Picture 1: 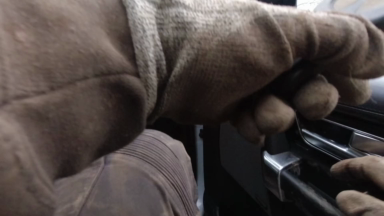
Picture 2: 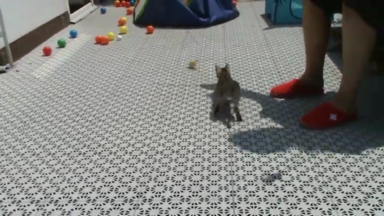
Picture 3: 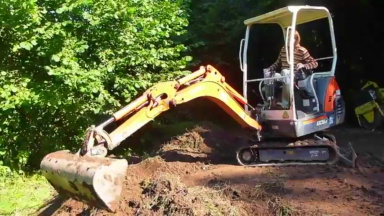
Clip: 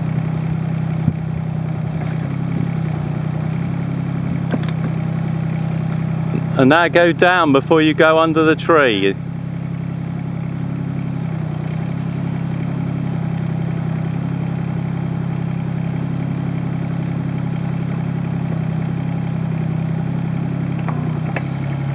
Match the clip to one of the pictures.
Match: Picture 3